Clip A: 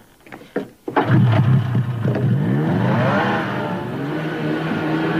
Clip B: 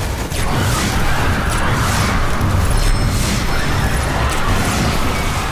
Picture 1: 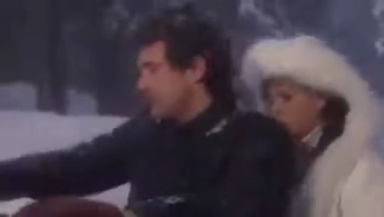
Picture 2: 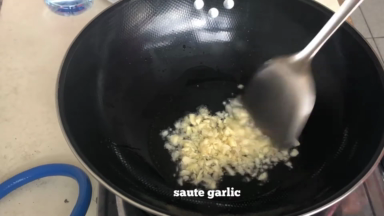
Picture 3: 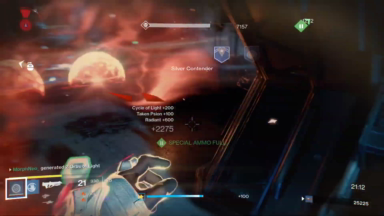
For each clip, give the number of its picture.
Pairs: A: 1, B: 3